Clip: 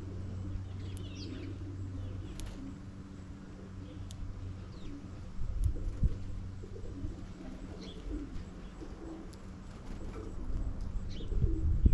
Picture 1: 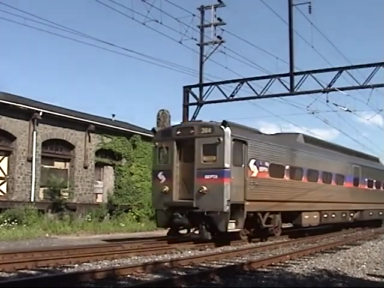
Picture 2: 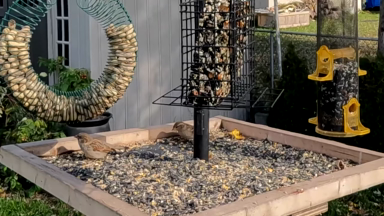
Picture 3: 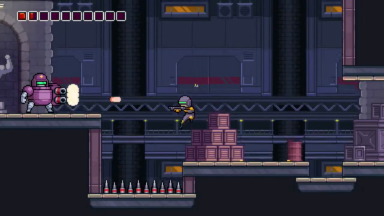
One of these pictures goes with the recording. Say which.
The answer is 2